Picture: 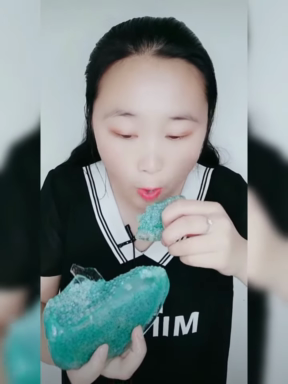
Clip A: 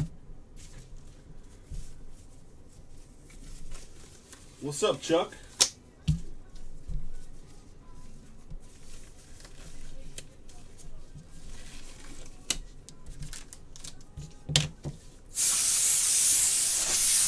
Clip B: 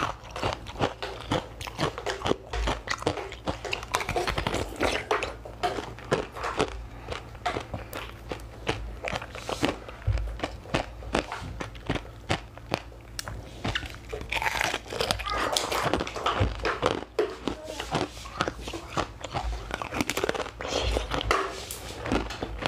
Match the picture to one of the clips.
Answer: B